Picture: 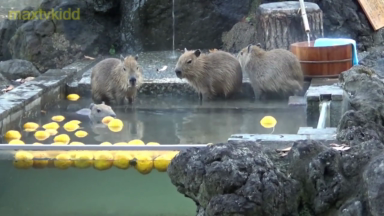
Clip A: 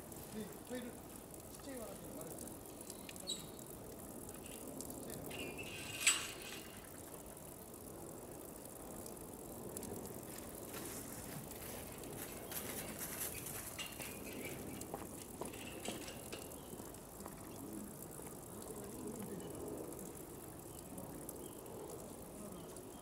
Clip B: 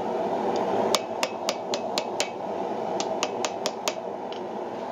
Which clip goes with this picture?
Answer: A